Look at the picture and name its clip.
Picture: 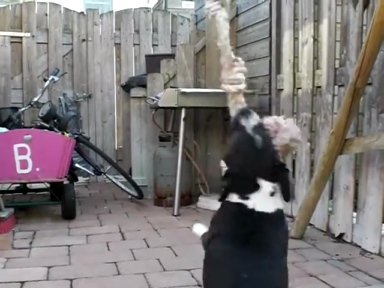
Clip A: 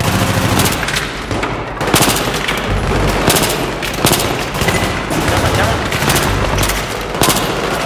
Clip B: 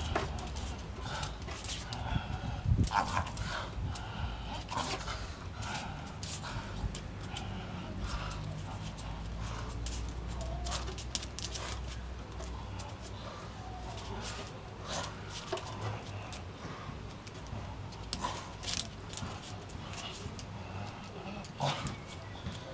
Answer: B